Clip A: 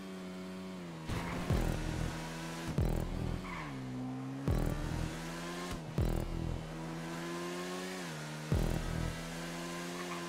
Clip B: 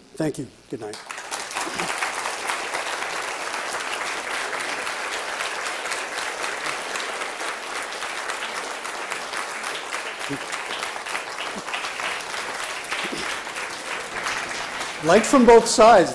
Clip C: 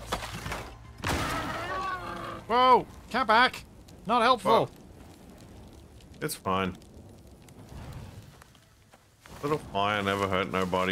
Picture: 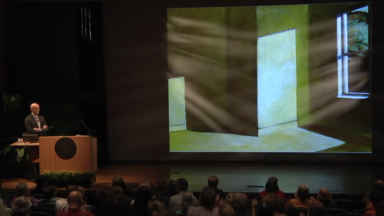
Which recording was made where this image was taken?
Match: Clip B